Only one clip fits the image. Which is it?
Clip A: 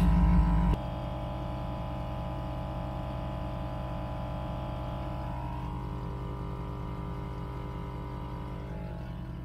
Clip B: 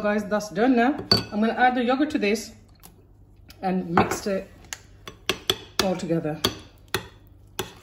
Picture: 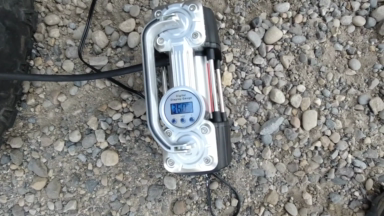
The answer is A